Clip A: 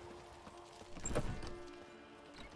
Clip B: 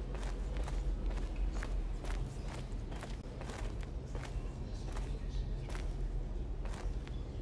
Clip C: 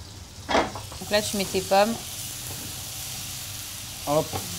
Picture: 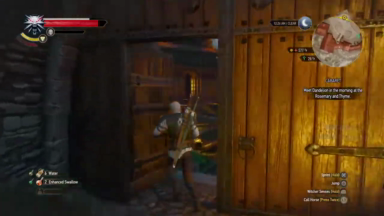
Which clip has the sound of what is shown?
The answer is A